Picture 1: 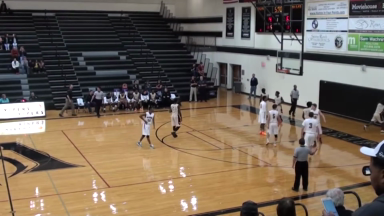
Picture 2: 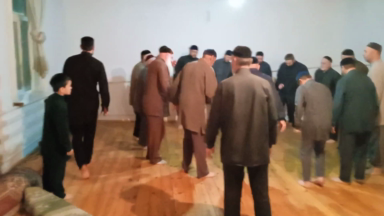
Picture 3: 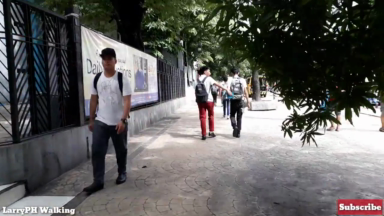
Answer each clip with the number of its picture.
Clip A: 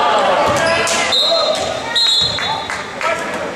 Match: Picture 1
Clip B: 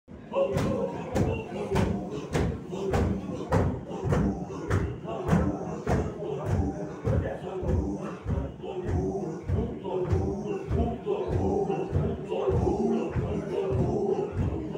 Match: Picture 2